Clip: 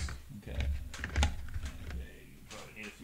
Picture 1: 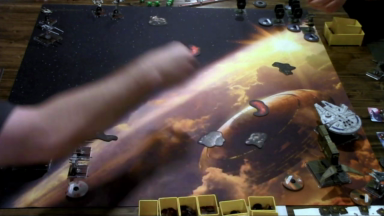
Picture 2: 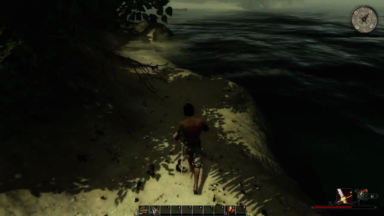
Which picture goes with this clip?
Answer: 1